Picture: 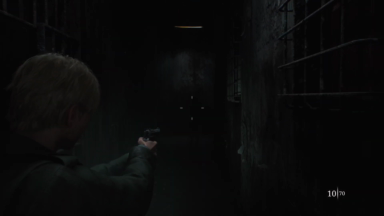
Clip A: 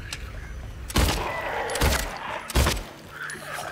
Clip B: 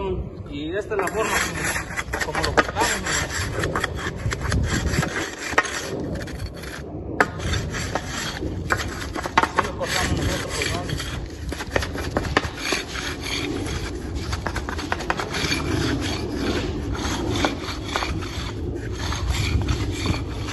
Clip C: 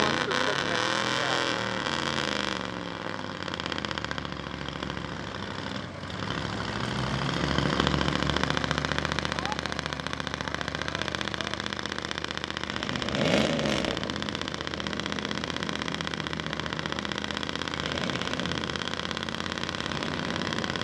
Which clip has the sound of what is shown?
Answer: A